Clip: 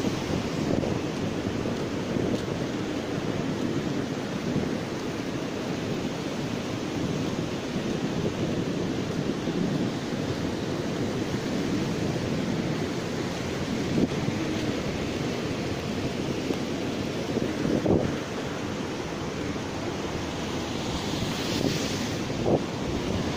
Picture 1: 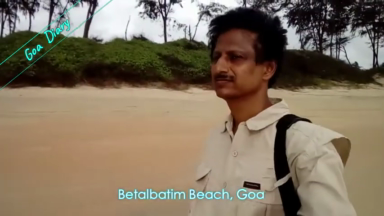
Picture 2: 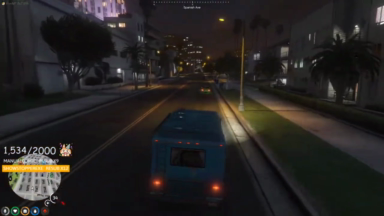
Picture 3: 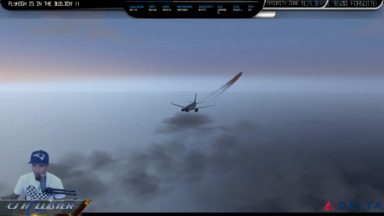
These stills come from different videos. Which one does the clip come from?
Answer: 1